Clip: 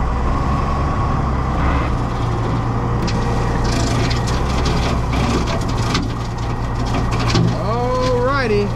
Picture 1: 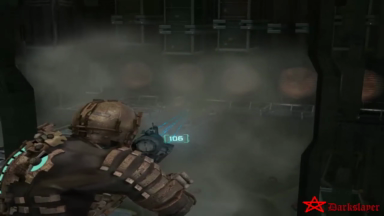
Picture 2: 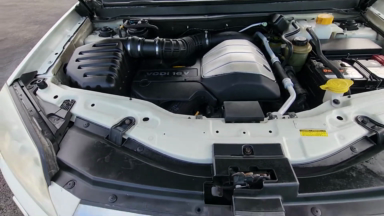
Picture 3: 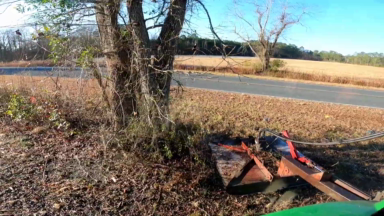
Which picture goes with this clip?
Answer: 3